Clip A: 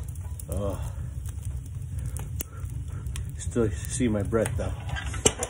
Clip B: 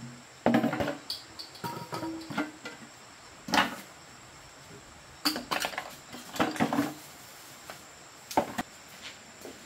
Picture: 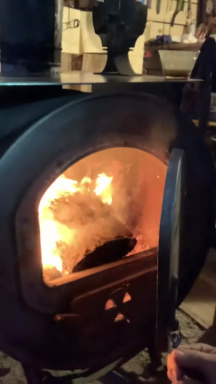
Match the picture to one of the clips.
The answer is A